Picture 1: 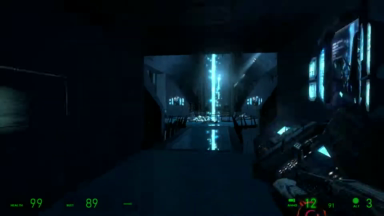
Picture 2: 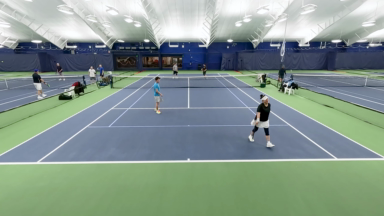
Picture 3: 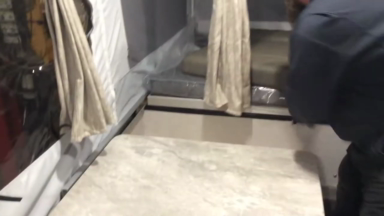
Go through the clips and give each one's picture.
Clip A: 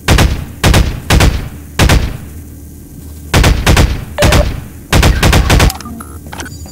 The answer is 1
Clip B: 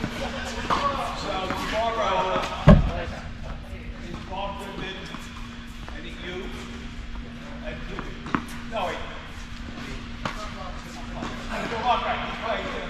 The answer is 2